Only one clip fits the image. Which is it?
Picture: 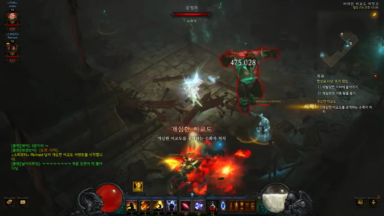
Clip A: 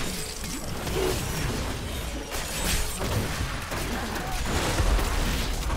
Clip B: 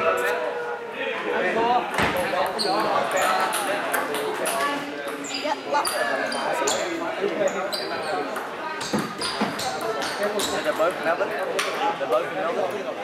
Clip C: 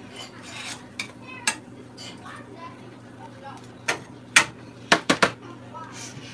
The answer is A